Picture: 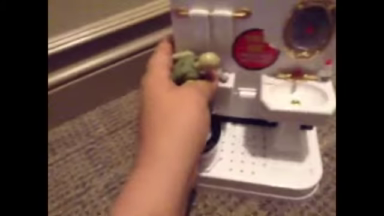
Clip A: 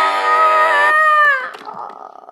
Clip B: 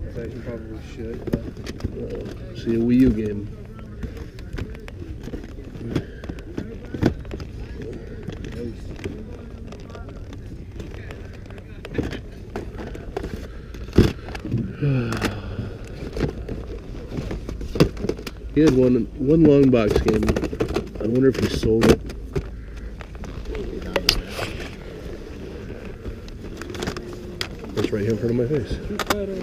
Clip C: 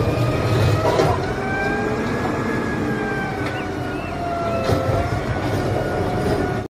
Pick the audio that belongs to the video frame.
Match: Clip A